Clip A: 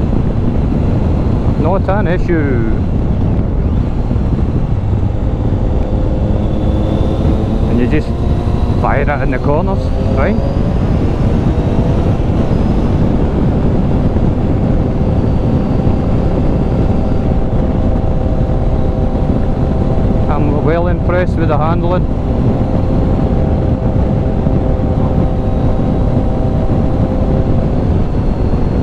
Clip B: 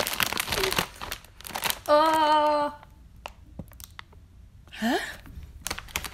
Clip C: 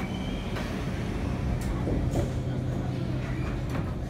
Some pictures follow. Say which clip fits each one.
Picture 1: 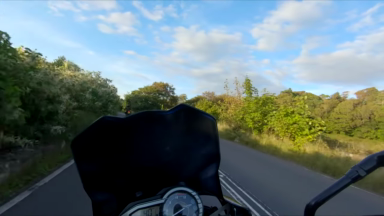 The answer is A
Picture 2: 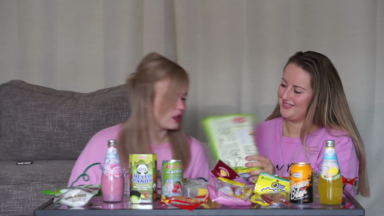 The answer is B